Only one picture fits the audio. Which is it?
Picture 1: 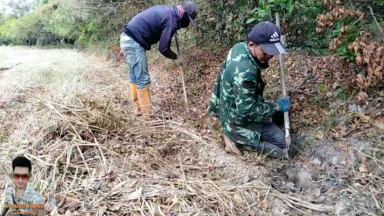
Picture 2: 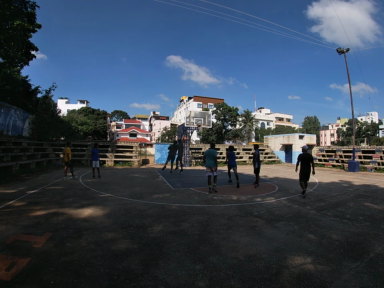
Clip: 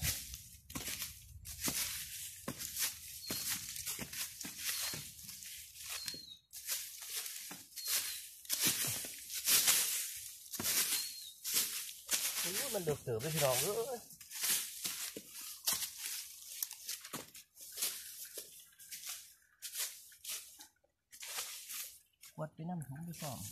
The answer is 1